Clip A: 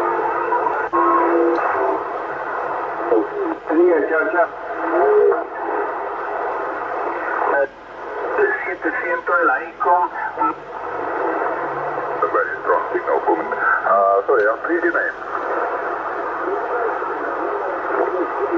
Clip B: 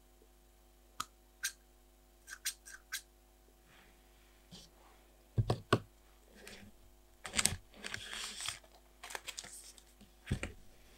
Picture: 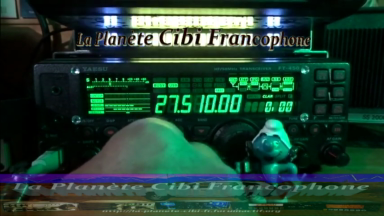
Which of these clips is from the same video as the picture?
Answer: A